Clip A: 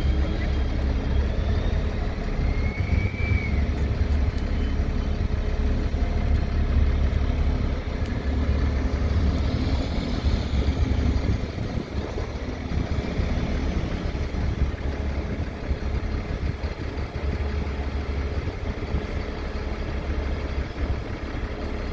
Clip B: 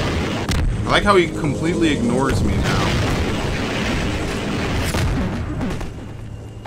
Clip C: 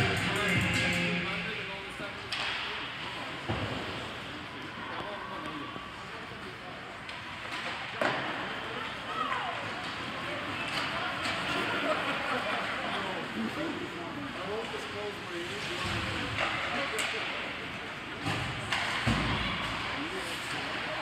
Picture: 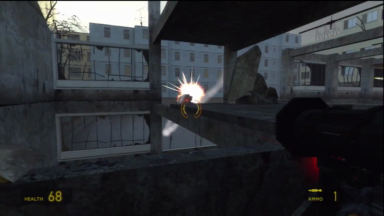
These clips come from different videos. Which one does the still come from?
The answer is B